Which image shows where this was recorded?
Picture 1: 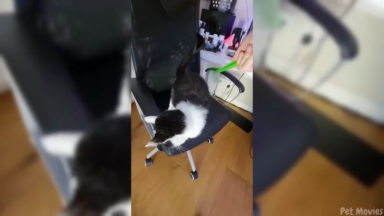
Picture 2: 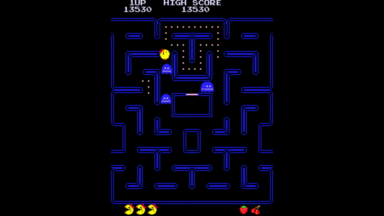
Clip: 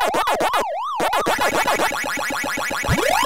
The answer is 2